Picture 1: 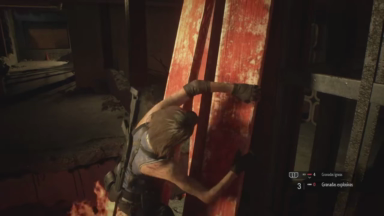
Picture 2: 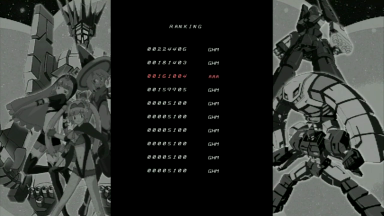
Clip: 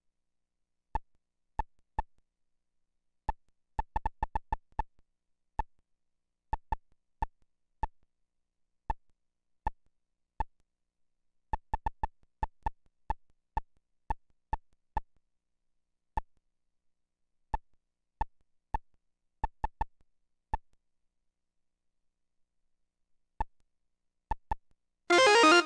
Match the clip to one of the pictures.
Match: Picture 2